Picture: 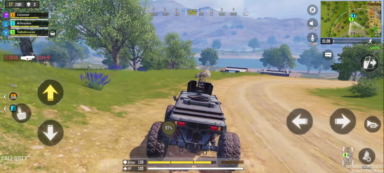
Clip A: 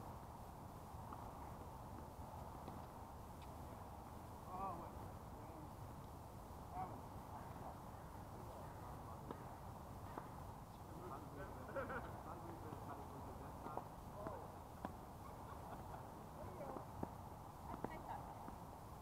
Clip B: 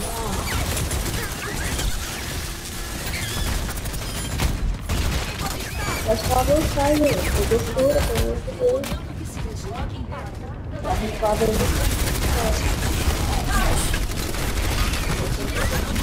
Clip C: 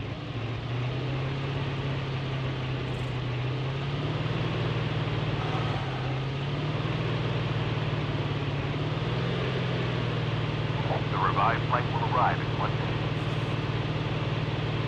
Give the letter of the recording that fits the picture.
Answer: C